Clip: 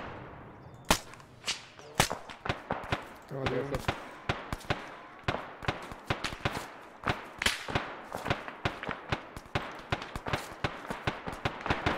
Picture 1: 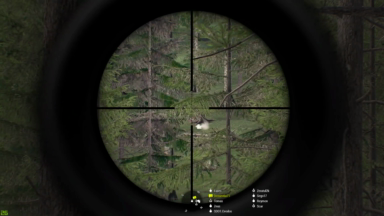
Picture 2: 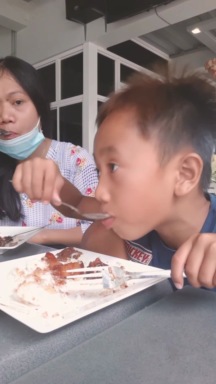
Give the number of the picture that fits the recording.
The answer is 1